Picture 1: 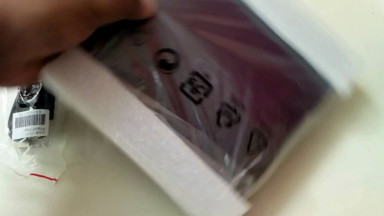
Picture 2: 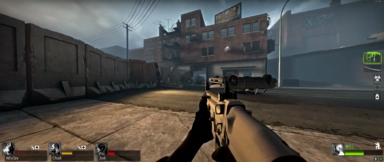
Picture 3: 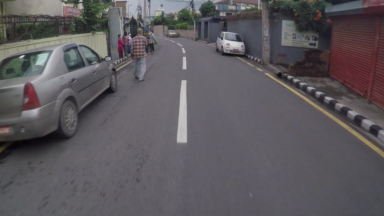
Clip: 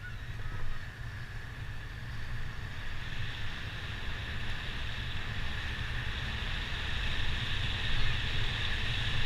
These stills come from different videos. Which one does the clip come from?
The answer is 3